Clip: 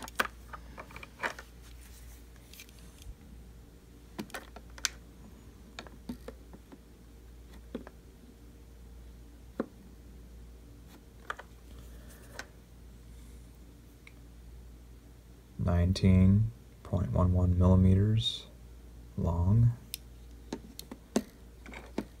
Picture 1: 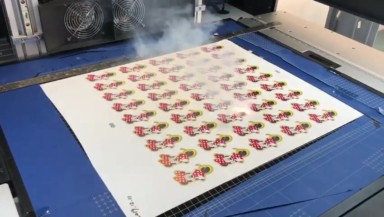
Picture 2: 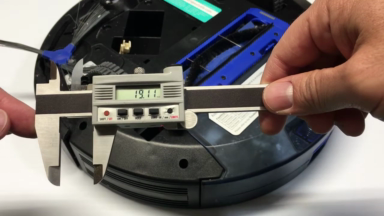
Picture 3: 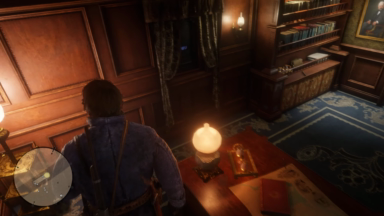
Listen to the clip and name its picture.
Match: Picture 2